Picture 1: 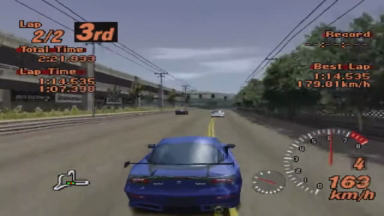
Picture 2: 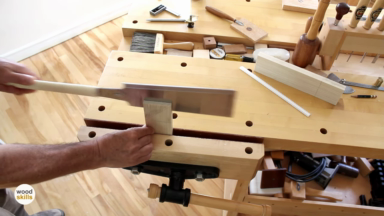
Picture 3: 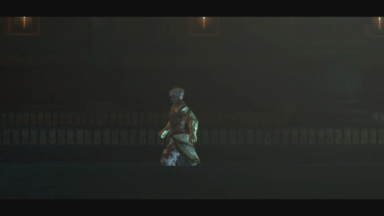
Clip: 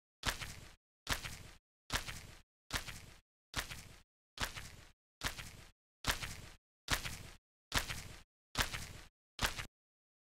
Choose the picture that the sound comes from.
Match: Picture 3